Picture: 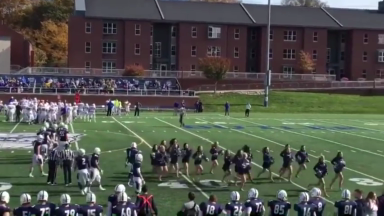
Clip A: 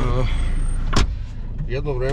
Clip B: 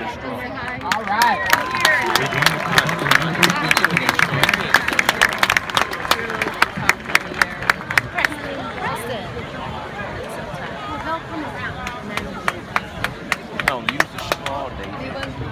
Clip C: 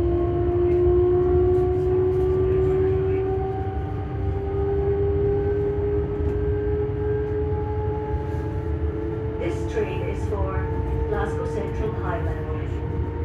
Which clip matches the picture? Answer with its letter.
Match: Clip B